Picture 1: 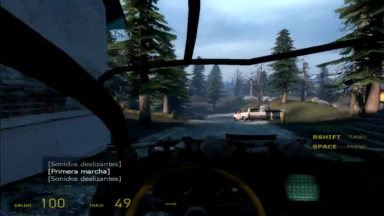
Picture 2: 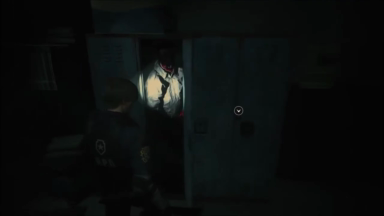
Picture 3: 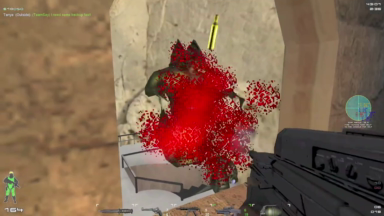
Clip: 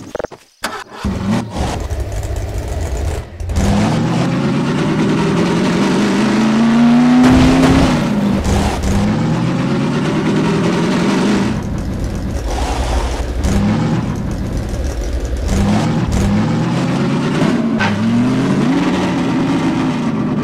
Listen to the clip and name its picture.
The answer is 1